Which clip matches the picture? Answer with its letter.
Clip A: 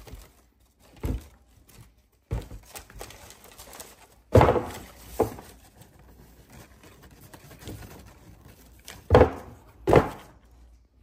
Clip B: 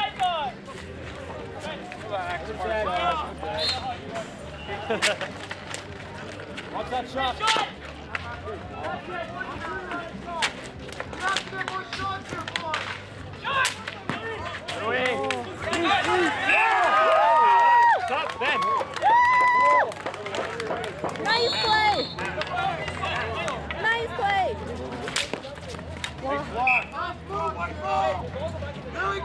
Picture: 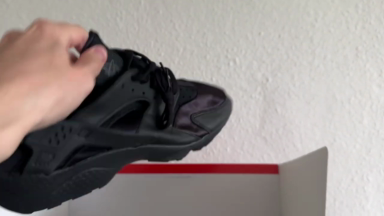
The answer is A